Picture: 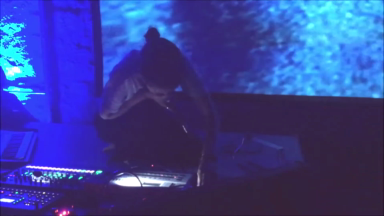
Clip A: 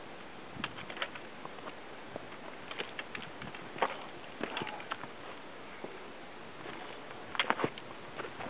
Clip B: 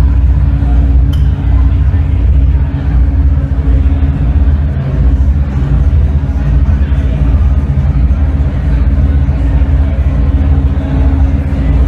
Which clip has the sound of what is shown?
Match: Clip B